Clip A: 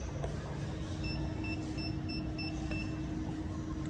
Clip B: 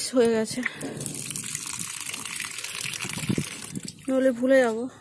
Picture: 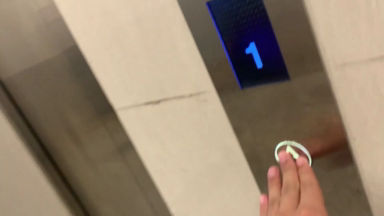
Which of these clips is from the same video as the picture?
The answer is A